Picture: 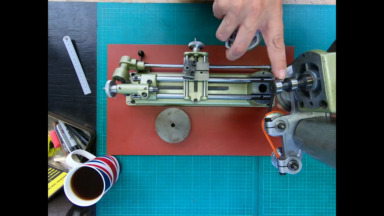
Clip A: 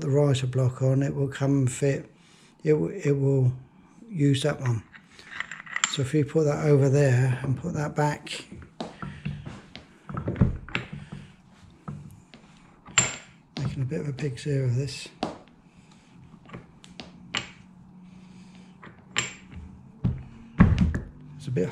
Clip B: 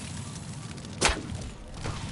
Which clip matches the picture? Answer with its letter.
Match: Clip A